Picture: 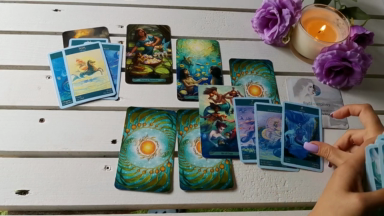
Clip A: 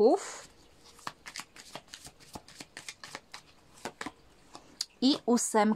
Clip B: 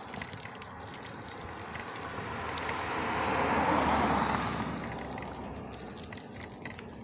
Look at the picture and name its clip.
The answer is A